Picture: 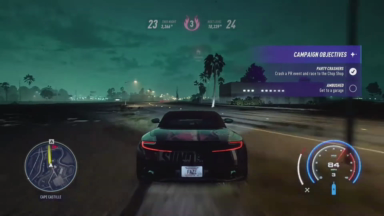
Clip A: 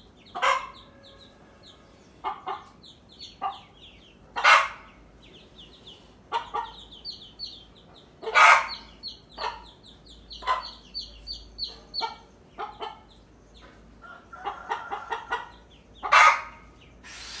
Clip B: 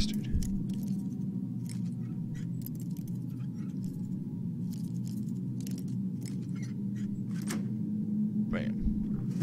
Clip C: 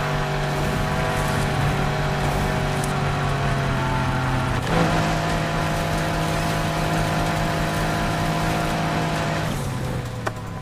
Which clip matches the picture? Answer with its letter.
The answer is C